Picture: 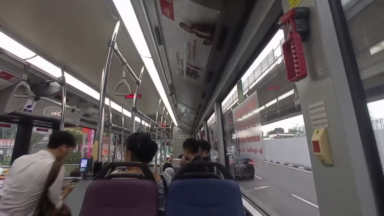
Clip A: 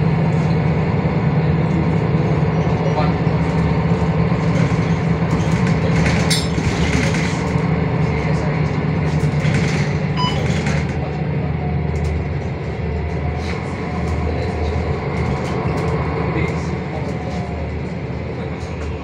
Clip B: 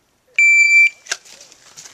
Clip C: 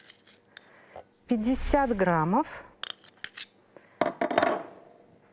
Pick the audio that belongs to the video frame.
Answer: A